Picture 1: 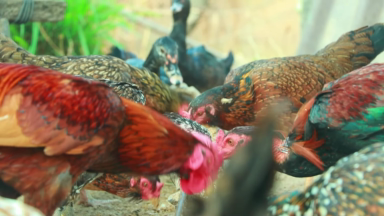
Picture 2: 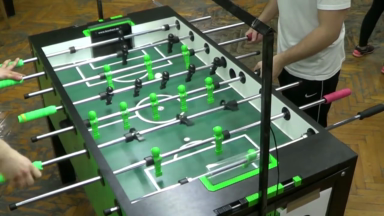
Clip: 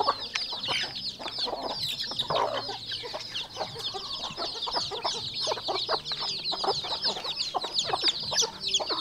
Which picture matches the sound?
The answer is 1